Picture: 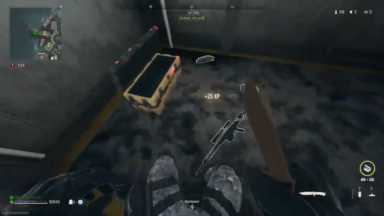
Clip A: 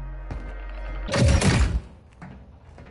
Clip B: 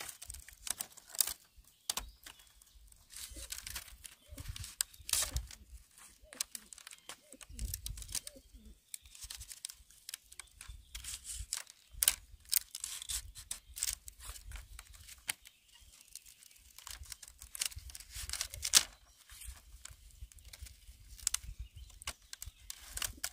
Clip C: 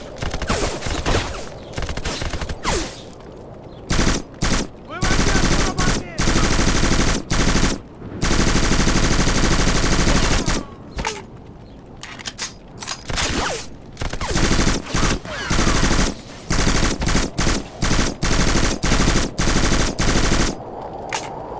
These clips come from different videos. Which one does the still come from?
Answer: A